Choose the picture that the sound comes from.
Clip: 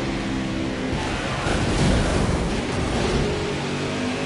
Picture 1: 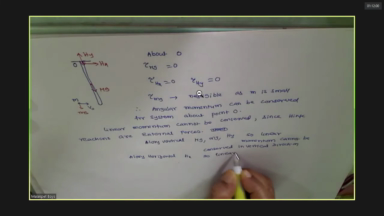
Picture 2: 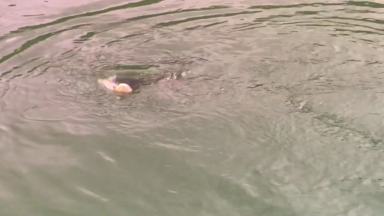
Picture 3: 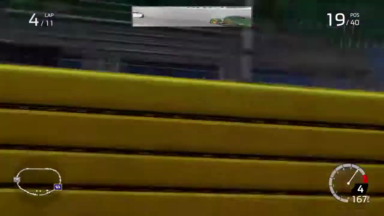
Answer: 3